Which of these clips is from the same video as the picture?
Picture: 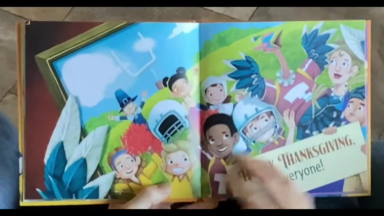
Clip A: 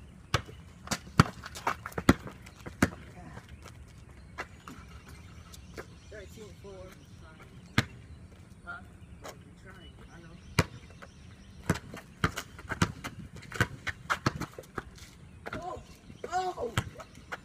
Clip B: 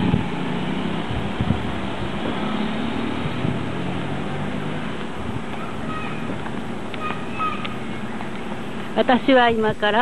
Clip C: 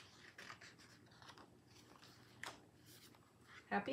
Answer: C